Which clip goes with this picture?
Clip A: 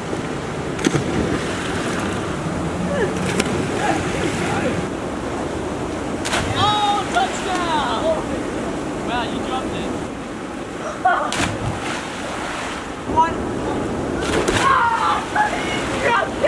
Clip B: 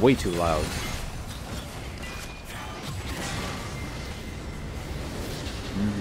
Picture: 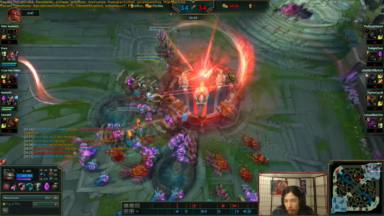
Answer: B